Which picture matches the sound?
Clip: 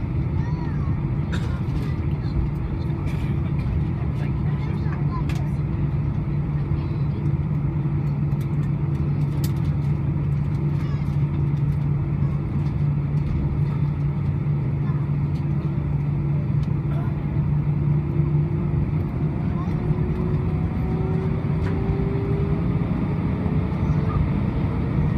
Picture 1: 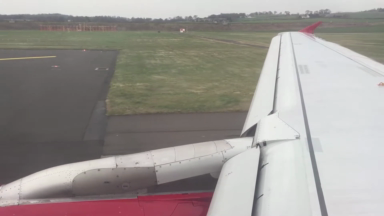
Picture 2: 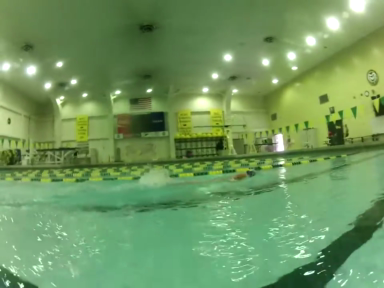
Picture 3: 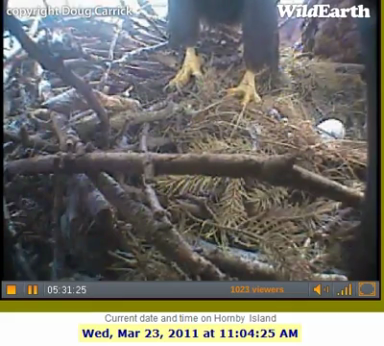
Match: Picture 1